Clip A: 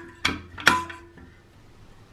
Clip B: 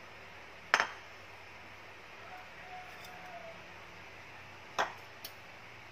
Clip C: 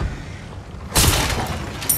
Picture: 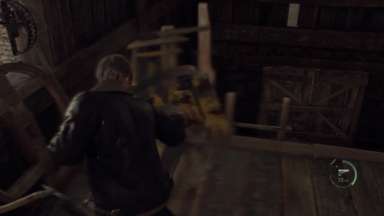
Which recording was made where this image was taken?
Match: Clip C